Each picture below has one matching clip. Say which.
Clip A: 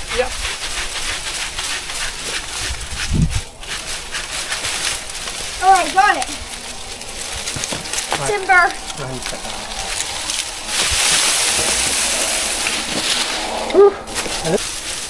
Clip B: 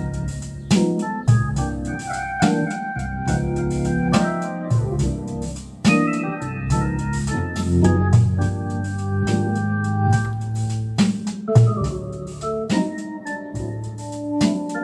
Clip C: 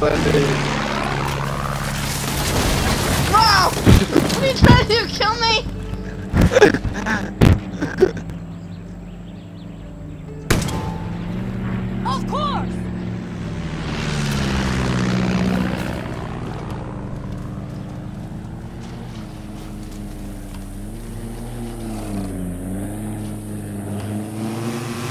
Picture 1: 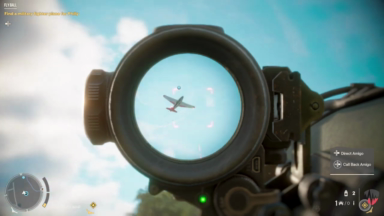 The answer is C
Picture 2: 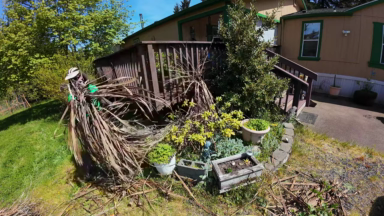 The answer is A